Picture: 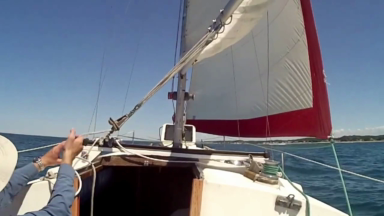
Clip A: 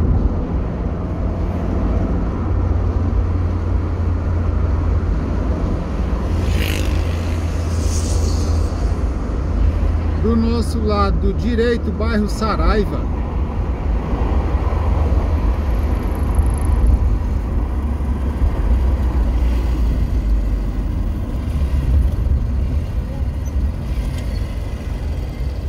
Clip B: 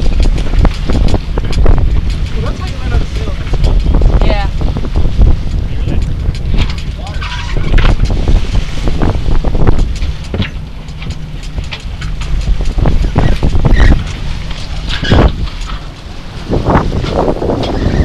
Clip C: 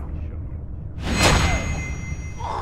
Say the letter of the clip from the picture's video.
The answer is B